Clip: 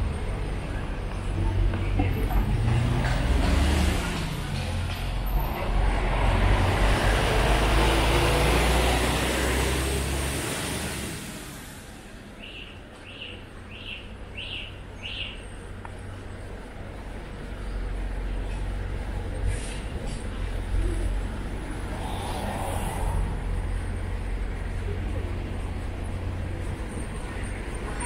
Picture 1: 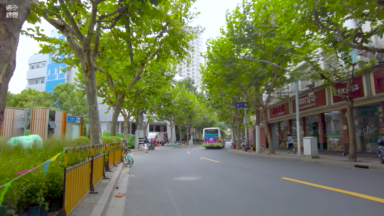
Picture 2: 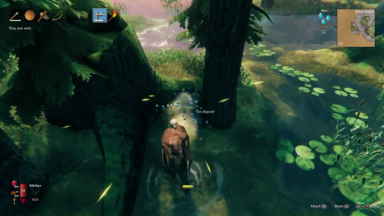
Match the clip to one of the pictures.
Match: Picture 1